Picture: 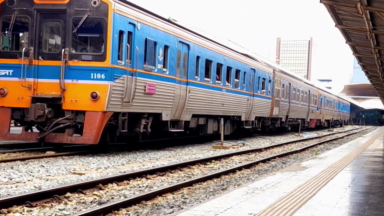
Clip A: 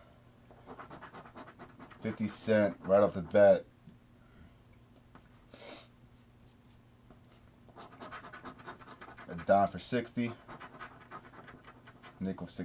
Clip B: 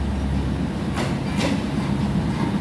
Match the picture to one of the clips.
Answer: B